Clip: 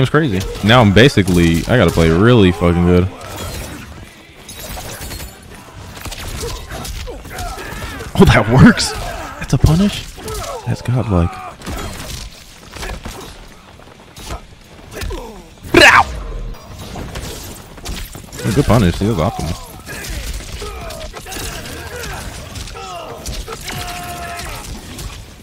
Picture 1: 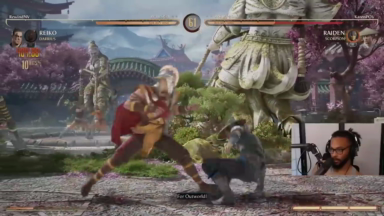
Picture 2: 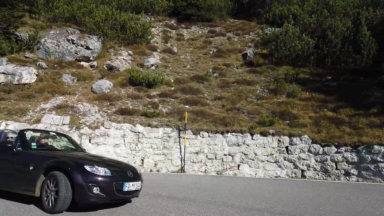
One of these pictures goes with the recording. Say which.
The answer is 1